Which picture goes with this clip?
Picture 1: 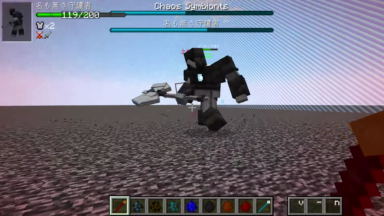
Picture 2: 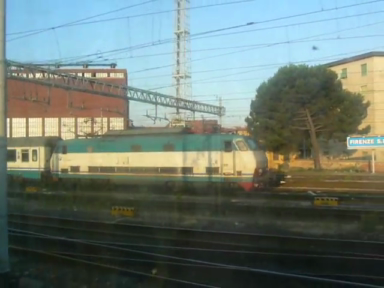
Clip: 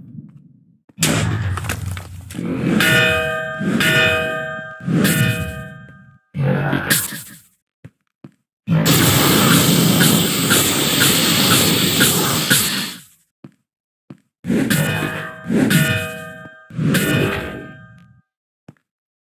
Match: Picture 1